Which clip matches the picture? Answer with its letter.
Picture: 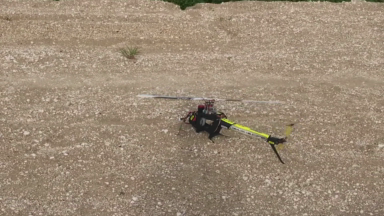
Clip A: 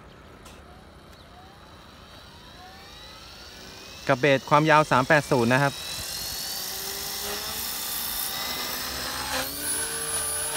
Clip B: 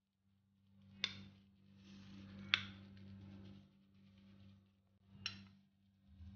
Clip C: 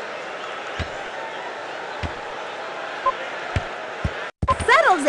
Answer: A